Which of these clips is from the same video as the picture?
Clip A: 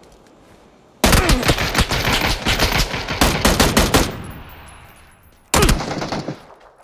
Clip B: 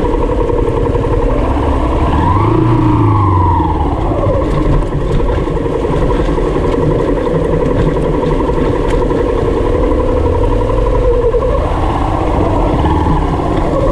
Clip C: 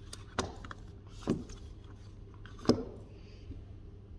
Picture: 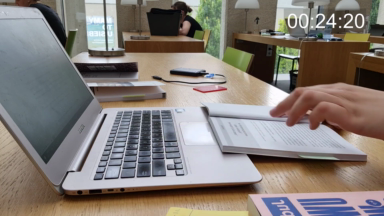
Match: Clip C